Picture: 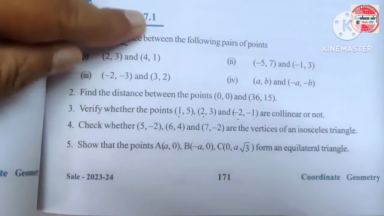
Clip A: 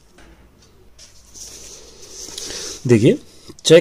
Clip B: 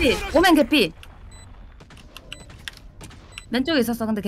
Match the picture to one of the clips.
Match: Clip A